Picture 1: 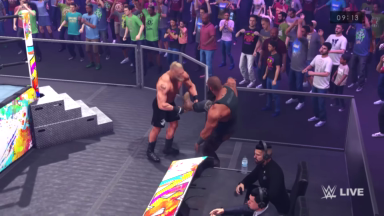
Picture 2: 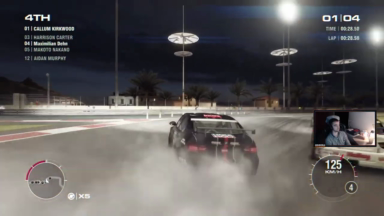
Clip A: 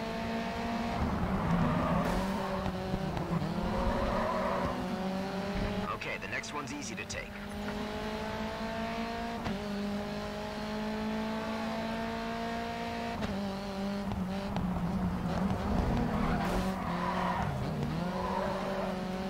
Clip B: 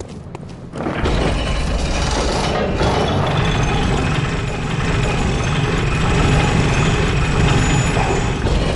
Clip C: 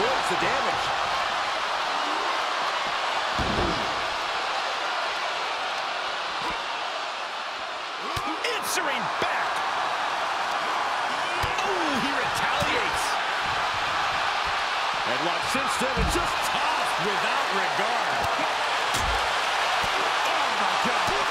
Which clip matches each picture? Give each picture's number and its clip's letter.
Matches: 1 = C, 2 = A